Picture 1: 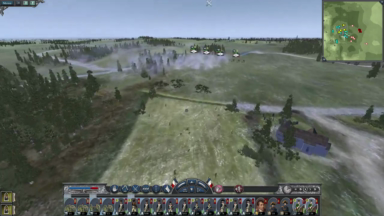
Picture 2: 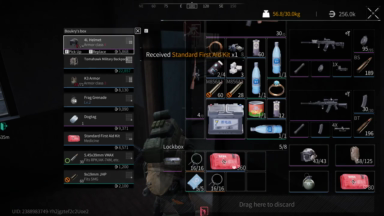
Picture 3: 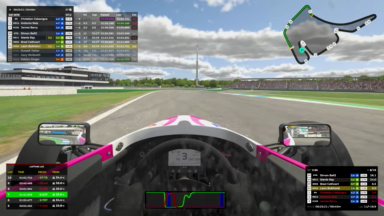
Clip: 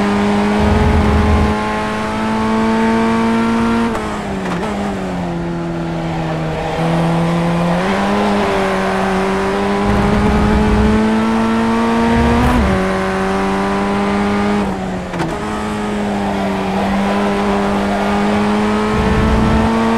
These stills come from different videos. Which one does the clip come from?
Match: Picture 3